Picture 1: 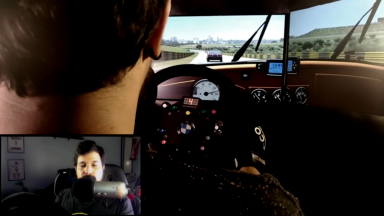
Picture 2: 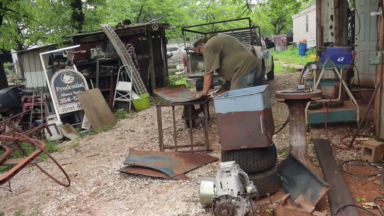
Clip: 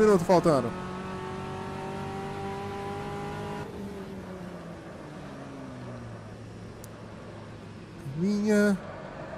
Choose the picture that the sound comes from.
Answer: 1